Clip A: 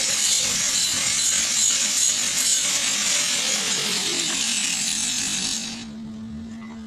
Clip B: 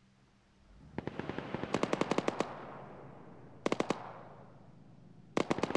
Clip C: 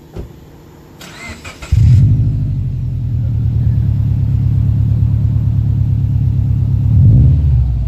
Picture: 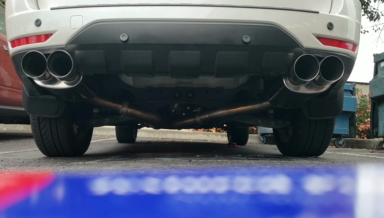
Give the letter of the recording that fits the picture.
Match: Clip C